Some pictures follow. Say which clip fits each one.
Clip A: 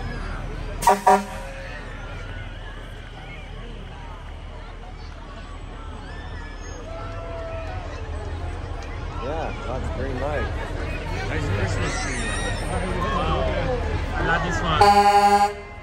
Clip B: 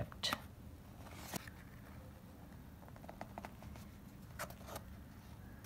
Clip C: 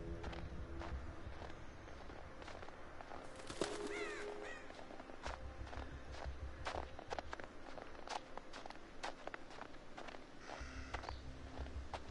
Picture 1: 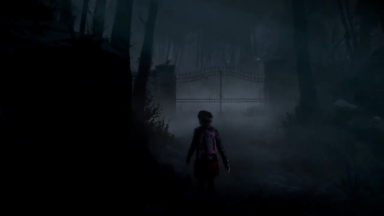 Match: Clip C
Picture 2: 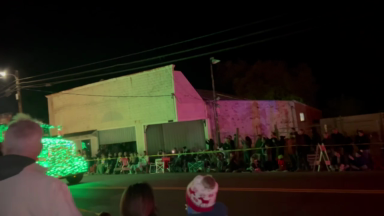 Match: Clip A